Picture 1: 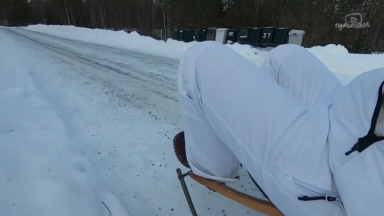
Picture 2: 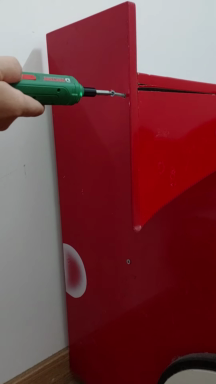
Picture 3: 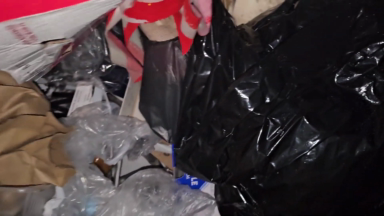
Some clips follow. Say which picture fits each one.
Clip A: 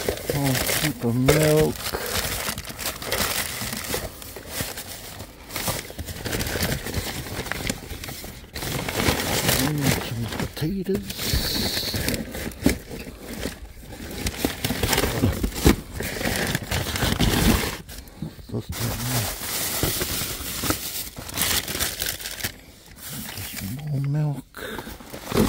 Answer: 3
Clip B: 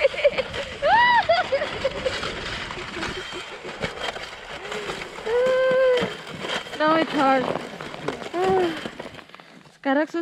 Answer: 1